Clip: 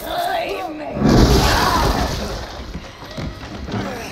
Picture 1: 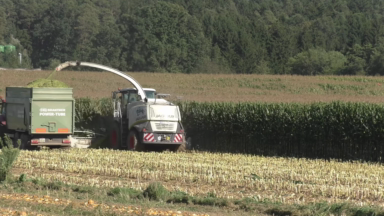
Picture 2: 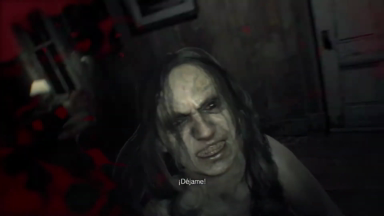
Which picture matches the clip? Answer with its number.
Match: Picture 2